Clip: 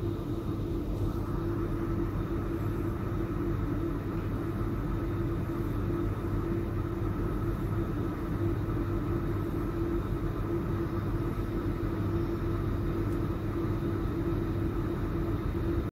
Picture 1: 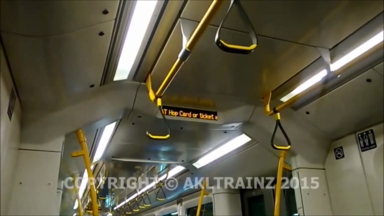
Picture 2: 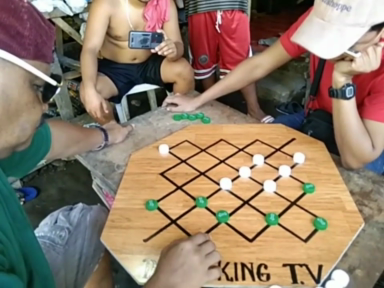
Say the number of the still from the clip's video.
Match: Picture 1